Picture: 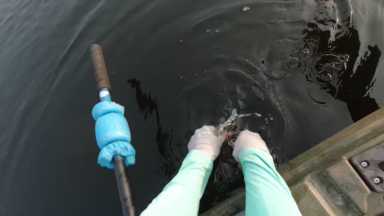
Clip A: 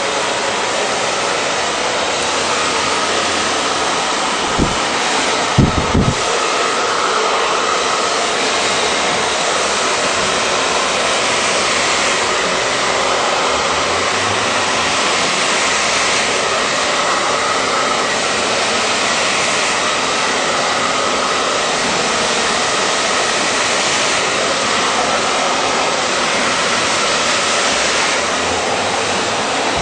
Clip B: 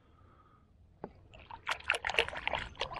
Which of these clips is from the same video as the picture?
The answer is B